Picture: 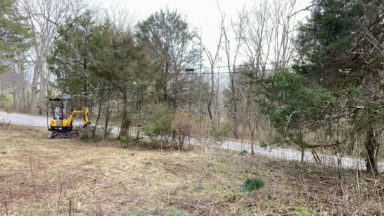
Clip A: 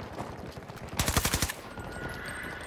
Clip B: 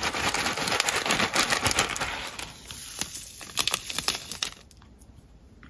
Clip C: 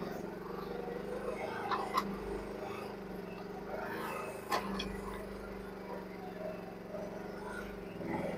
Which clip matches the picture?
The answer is C